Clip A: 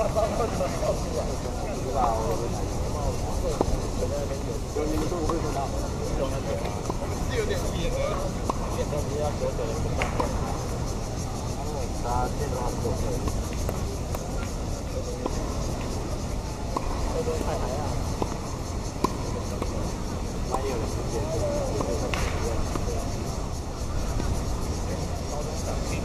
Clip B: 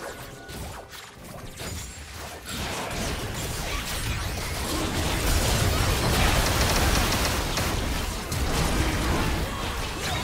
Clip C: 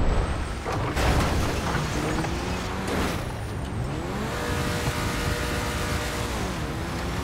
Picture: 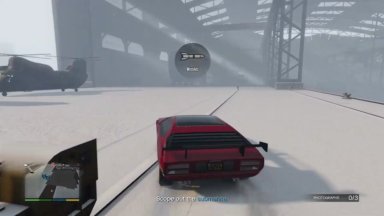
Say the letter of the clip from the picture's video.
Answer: C